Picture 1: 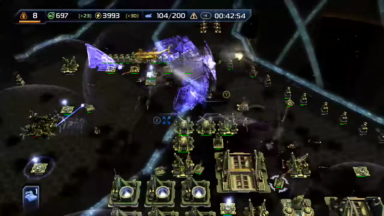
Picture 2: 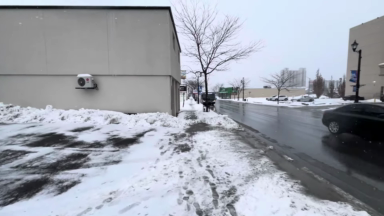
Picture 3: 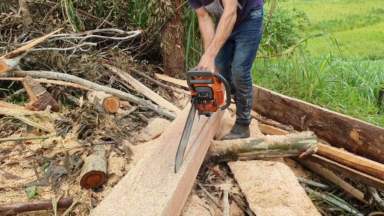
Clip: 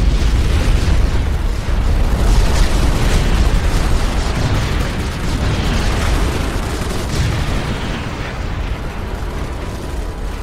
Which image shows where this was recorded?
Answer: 1